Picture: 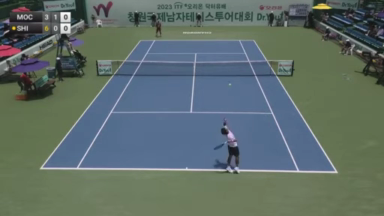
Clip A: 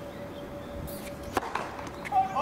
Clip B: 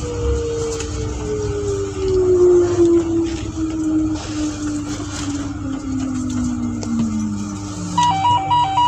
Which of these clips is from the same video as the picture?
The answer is A